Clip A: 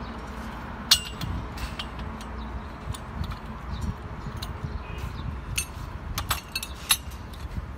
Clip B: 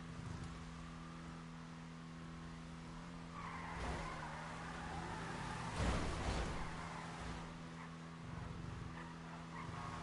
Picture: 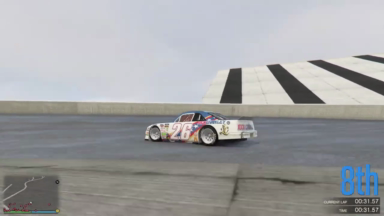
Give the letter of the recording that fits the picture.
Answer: B